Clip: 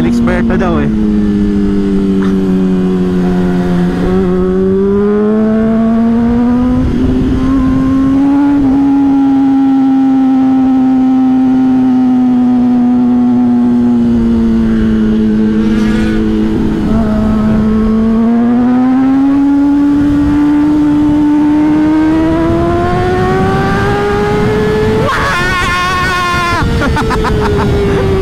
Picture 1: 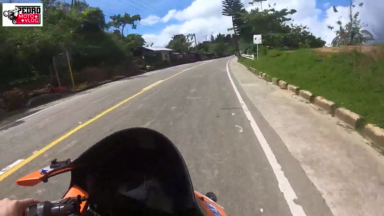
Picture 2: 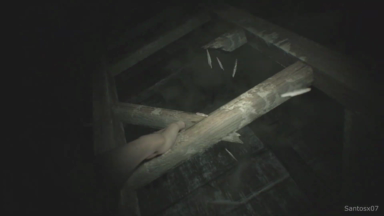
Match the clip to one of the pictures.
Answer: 1